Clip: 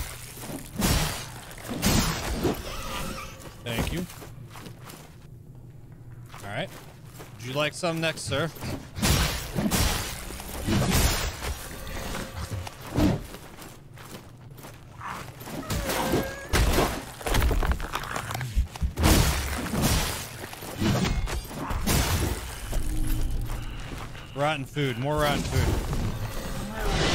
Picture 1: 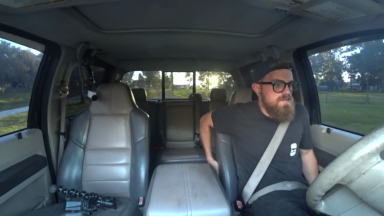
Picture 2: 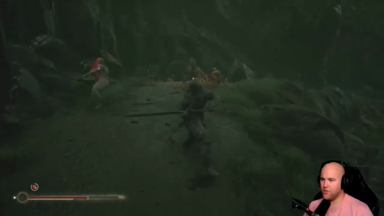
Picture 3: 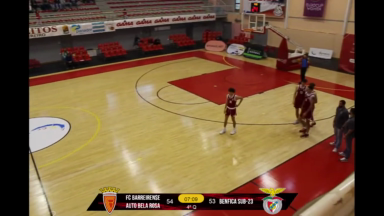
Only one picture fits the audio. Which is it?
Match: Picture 2